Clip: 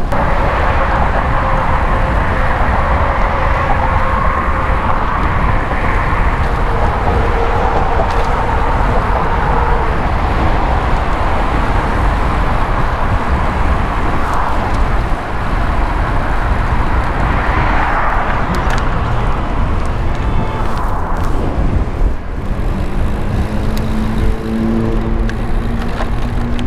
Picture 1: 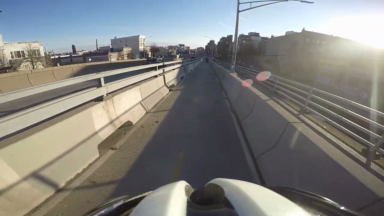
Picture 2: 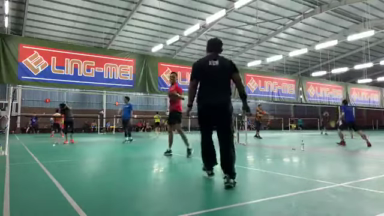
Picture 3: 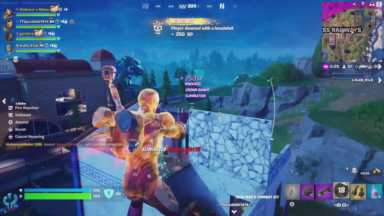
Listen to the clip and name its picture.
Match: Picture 1